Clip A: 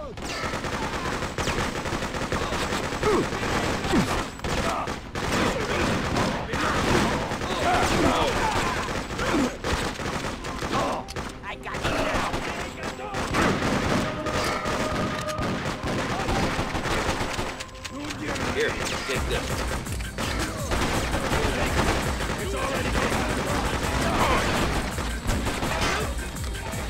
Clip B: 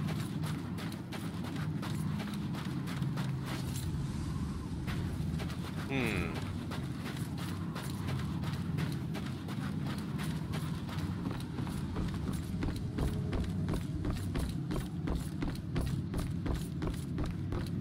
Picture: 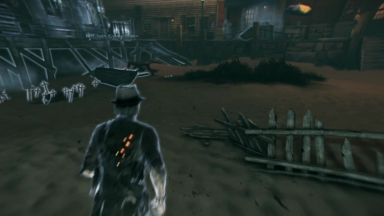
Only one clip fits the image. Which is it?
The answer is B